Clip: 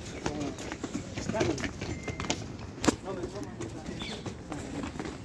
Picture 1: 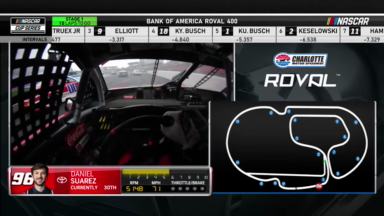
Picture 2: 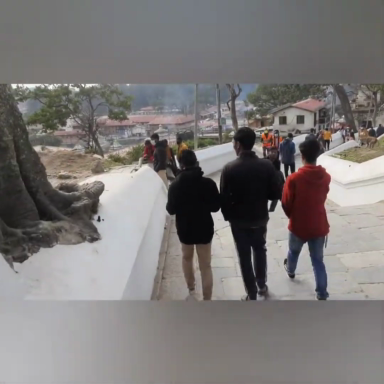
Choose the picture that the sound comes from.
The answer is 2